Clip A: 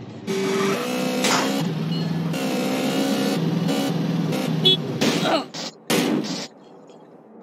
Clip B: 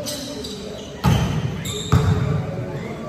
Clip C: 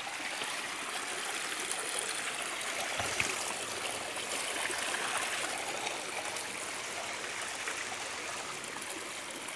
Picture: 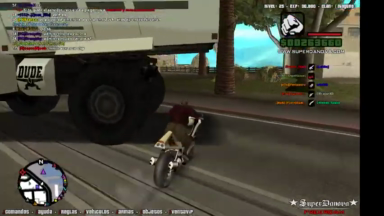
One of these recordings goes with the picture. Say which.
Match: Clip A